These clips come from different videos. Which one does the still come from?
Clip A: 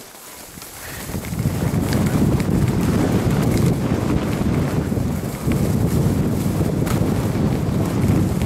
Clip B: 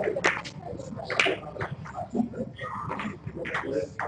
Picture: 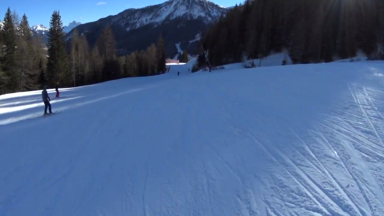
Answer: A